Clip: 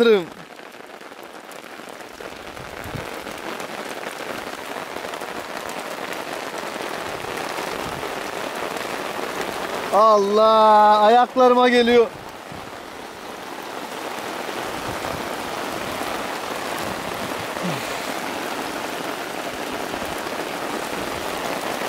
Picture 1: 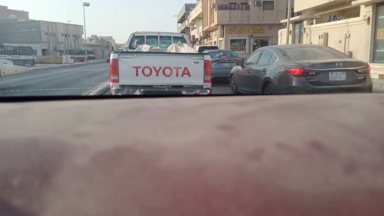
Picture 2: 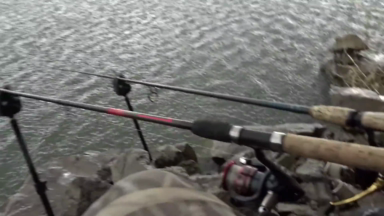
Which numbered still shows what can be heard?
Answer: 2